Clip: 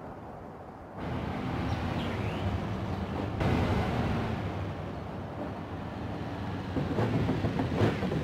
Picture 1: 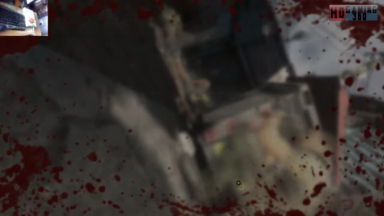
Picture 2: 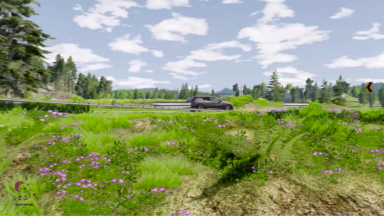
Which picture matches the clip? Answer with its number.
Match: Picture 2